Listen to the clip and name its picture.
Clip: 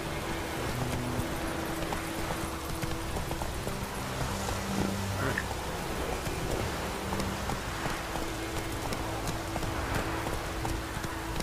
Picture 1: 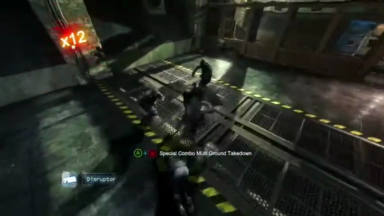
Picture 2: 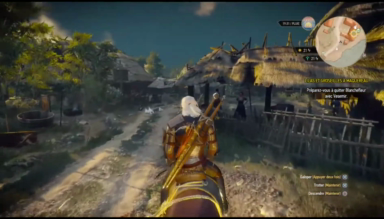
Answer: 2